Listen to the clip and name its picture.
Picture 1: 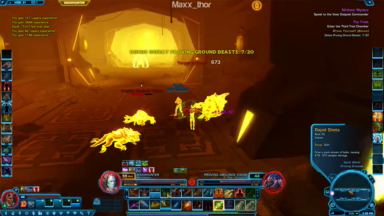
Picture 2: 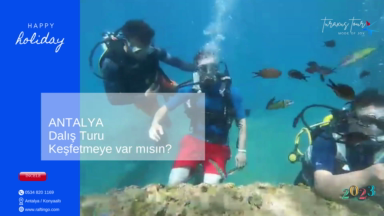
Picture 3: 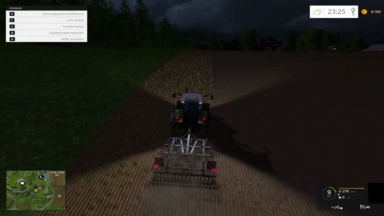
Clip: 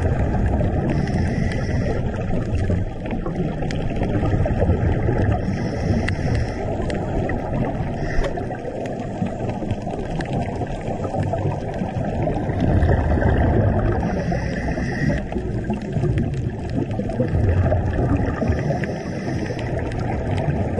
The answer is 2